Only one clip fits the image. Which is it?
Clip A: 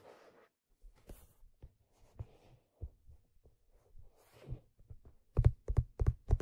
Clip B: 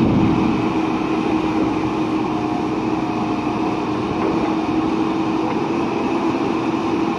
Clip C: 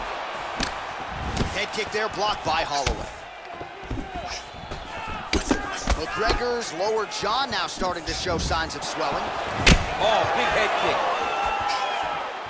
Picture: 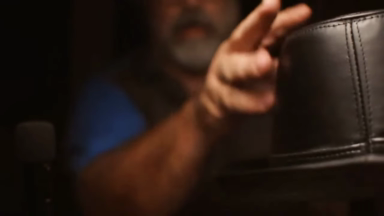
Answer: A